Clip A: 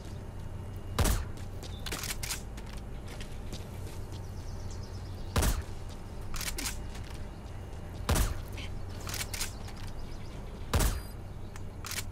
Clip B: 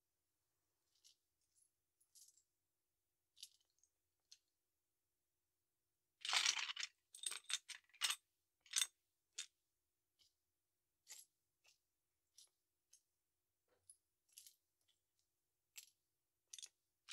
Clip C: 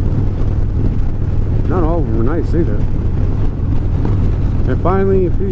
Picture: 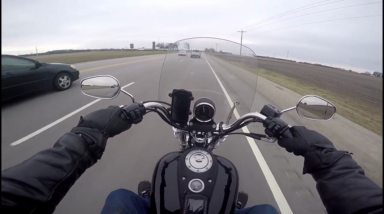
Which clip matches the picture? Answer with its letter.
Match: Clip C